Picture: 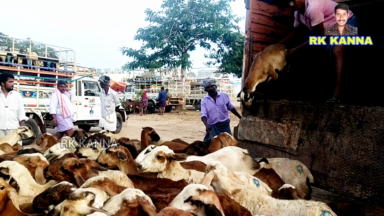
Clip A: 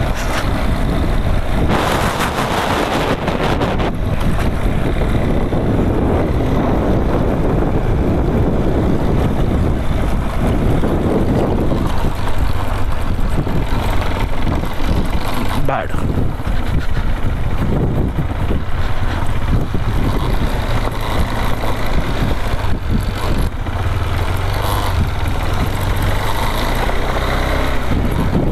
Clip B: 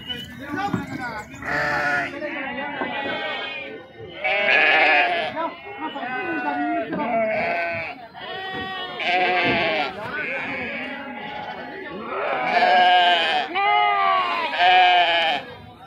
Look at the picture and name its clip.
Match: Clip B